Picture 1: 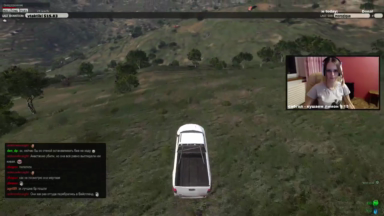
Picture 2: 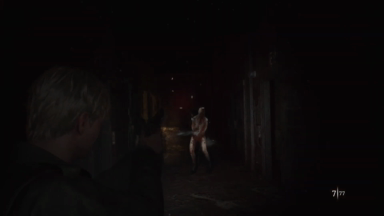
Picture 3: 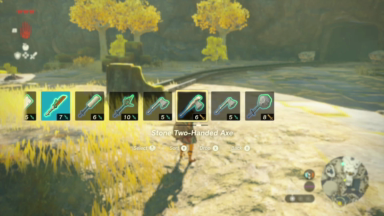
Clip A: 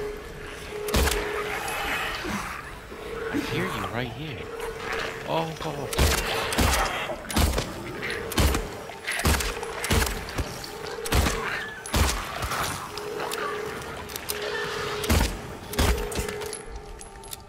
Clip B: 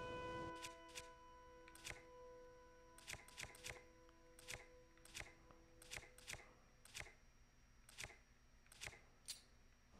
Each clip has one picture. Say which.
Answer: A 2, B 3